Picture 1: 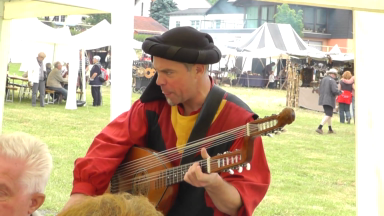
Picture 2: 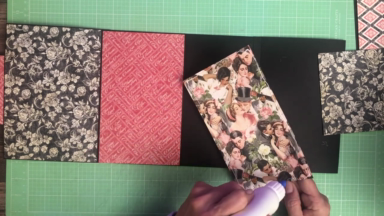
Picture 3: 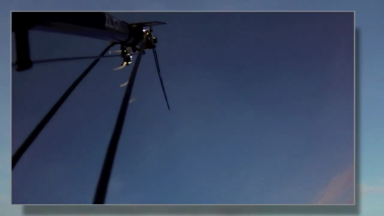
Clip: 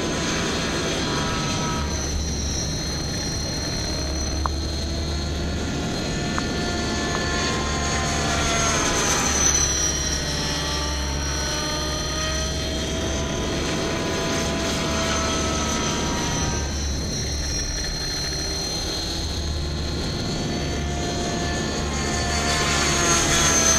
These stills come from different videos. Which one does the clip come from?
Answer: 3